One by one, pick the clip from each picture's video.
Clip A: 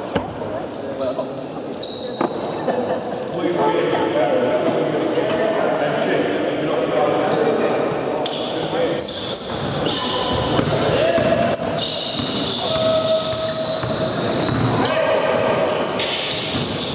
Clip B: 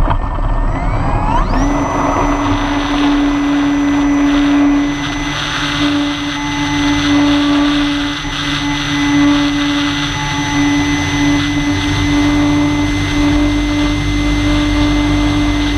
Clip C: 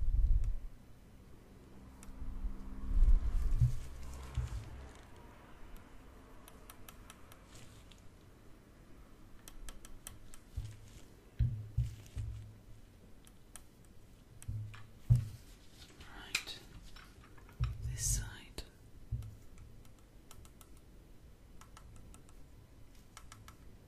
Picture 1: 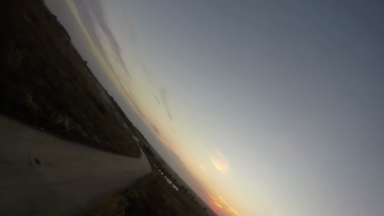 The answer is B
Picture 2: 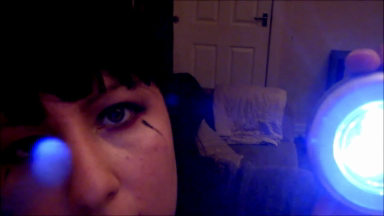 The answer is C